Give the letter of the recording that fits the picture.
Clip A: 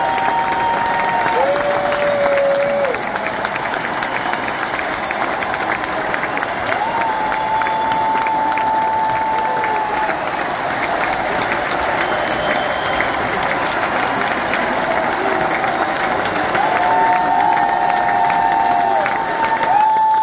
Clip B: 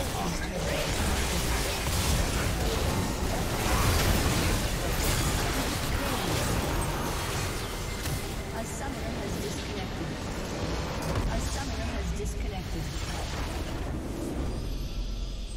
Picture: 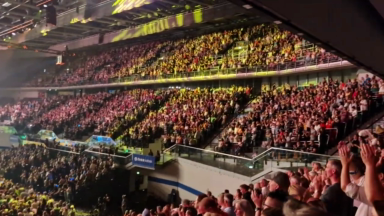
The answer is A